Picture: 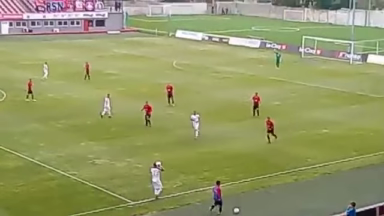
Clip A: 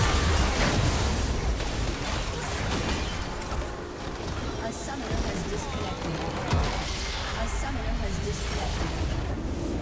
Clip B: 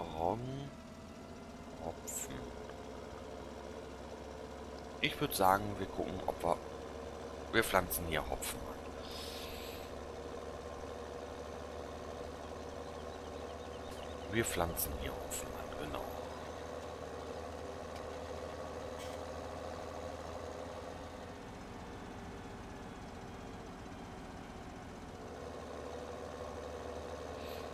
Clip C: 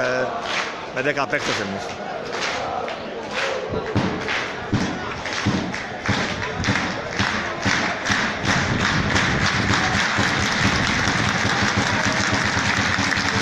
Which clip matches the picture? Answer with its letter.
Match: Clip C